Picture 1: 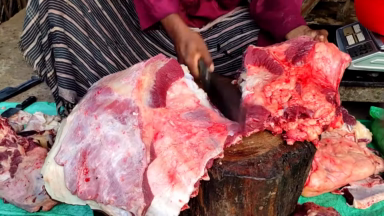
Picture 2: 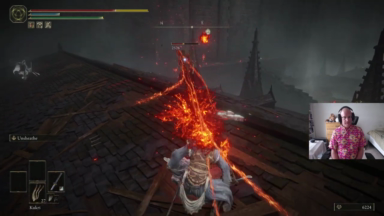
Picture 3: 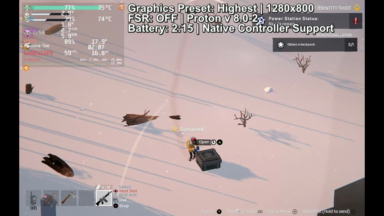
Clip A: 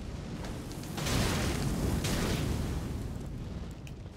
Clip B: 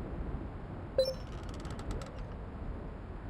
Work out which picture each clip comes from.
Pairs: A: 2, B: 3